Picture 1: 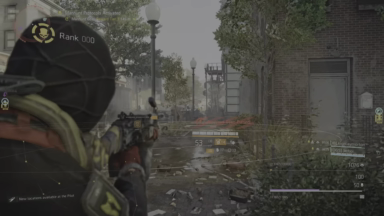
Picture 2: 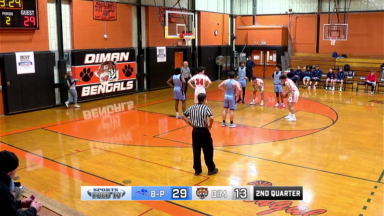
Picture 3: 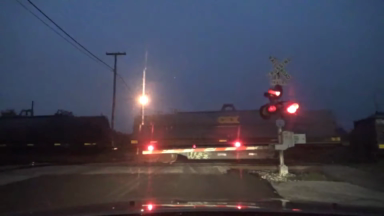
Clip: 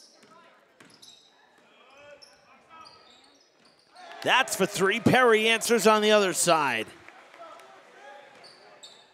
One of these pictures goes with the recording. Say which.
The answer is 2